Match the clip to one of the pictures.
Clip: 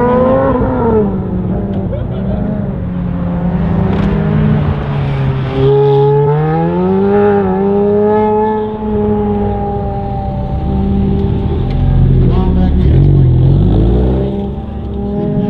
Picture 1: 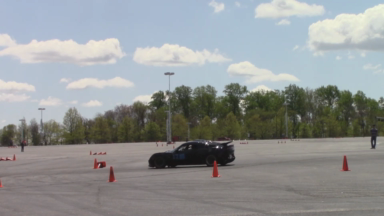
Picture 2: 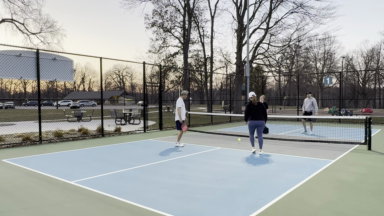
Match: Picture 1